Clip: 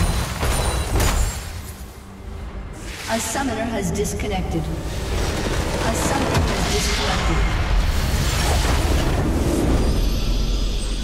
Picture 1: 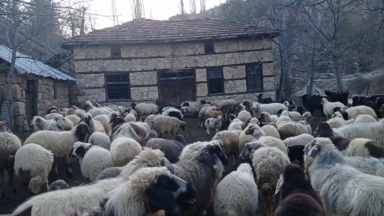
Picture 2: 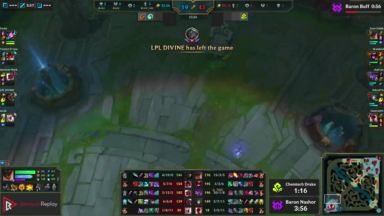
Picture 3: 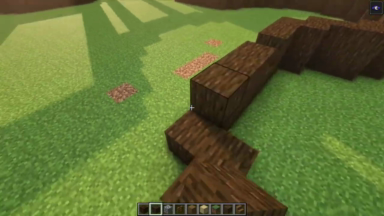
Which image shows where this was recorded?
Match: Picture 2